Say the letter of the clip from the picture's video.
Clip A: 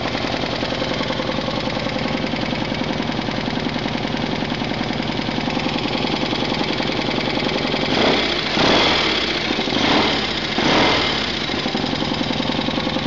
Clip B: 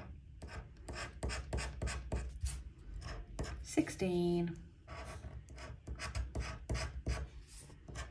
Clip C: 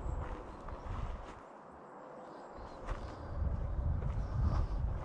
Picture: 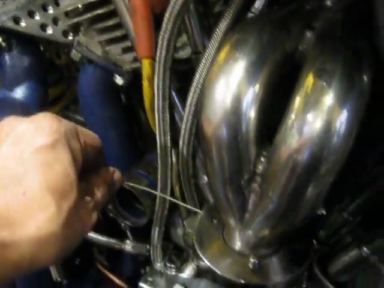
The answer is A